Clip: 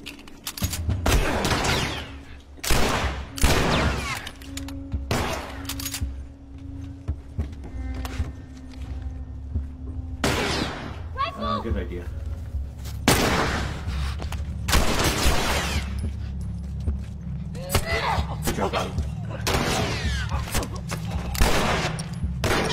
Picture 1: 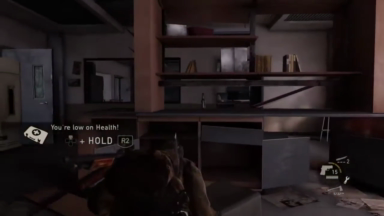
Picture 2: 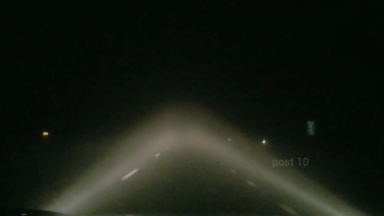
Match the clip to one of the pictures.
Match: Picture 1